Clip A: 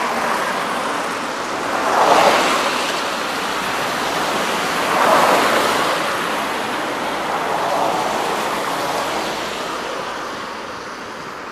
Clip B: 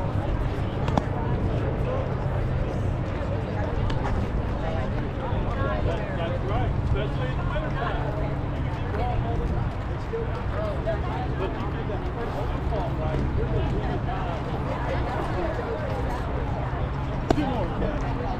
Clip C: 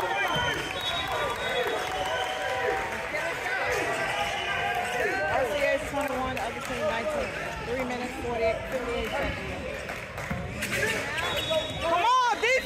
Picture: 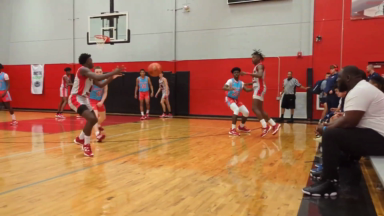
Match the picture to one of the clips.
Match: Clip C